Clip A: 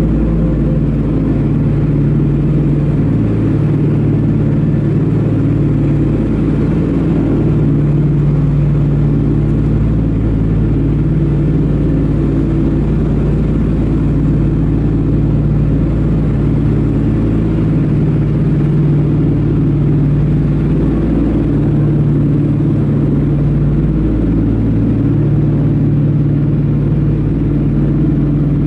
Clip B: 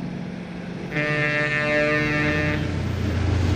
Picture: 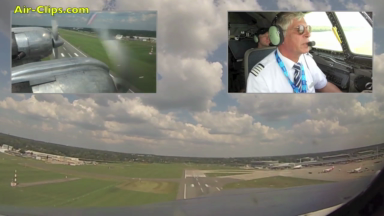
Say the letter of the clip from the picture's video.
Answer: A